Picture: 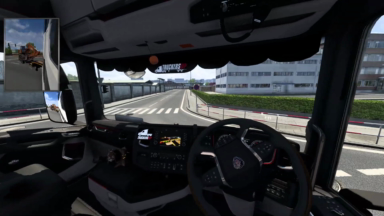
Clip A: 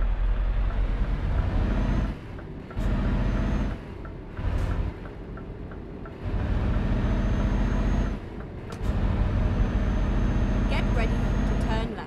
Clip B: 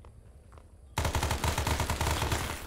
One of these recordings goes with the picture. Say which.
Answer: A